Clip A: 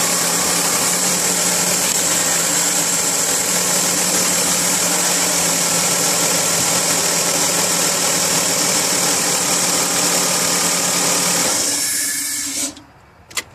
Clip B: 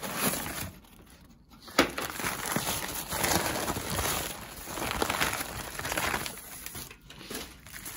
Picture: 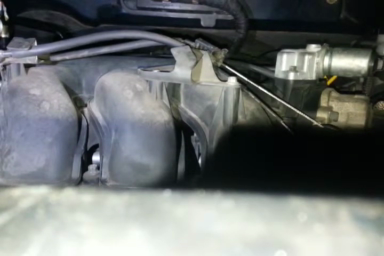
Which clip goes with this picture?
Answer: A